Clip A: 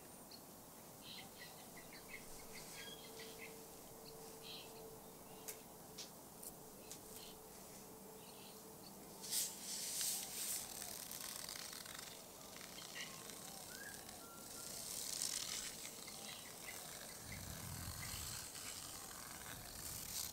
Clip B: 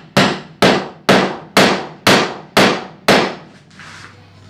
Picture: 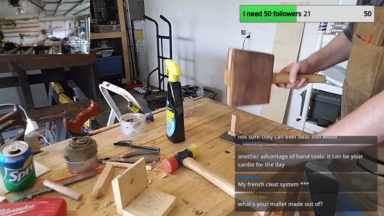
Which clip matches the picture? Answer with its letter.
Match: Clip B